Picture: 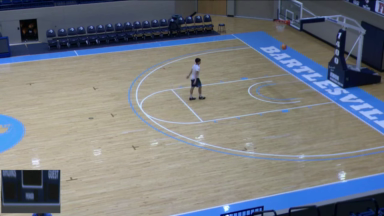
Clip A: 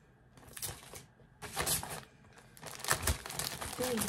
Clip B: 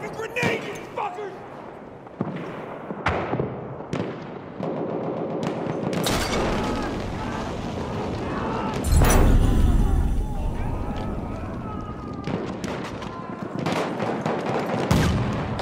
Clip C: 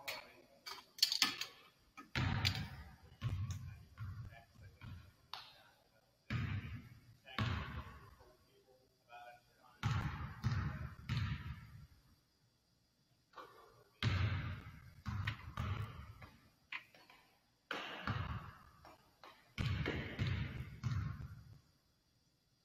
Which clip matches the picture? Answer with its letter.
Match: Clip C